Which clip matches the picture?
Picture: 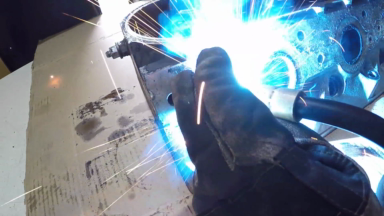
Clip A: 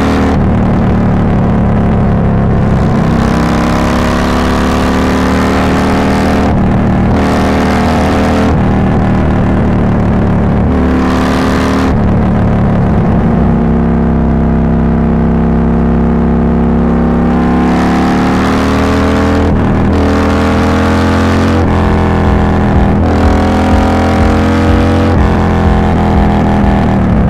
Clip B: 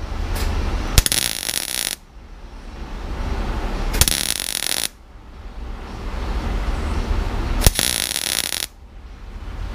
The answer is B